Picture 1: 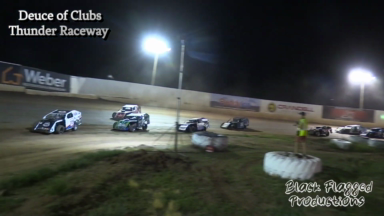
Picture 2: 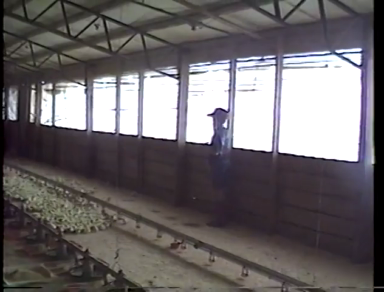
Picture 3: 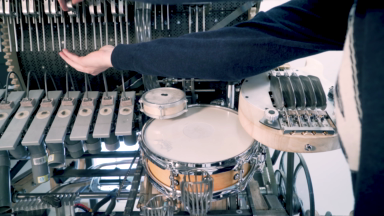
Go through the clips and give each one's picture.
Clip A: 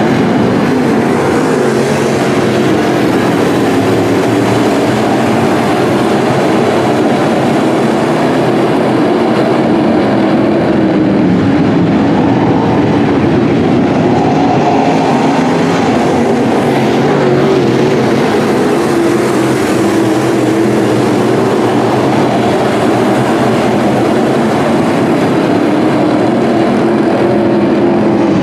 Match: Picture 1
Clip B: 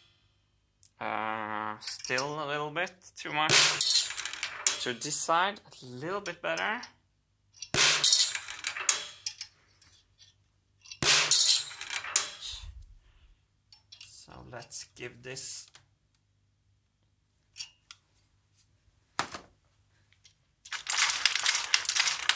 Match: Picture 3